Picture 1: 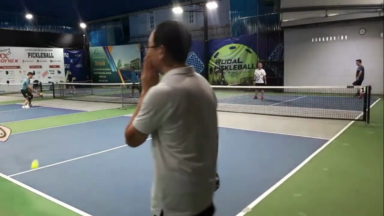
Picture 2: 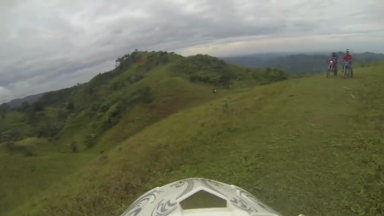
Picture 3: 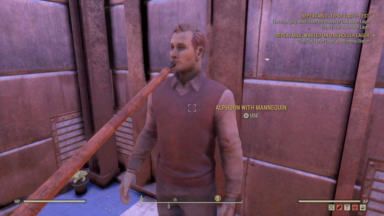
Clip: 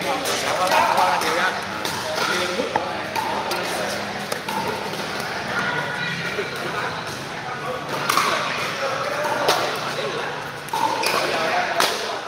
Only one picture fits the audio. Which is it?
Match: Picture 1